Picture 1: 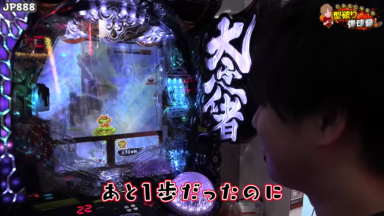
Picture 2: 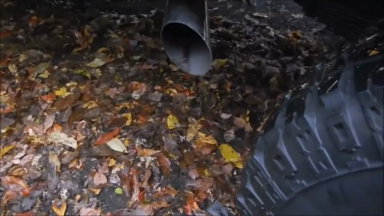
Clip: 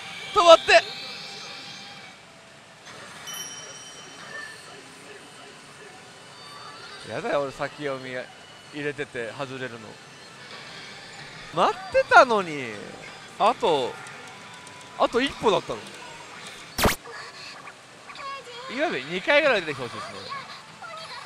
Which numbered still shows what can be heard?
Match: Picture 1